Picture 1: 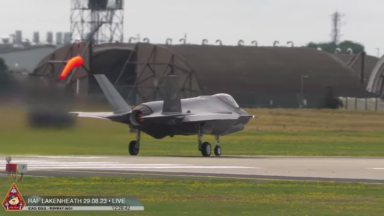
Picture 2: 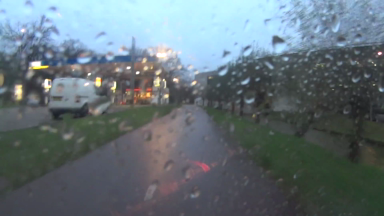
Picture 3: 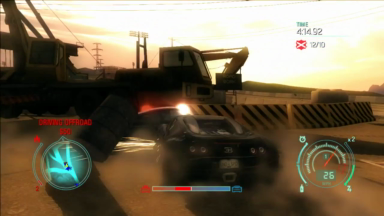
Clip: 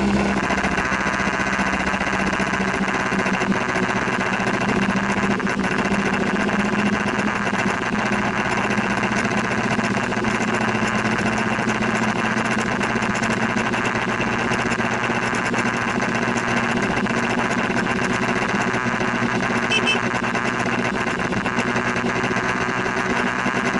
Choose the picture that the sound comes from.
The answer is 2